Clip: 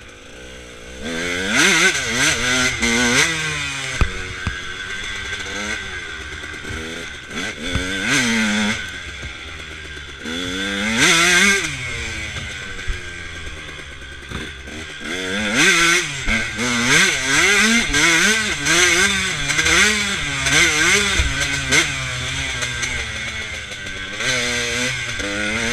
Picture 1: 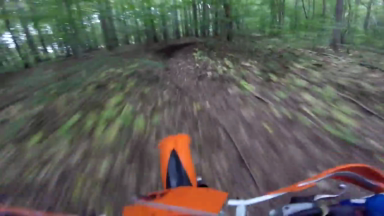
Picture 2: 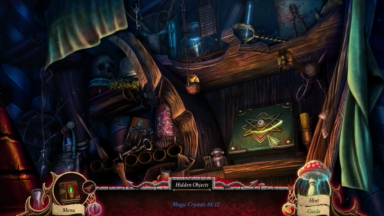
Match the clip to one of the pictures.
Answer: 1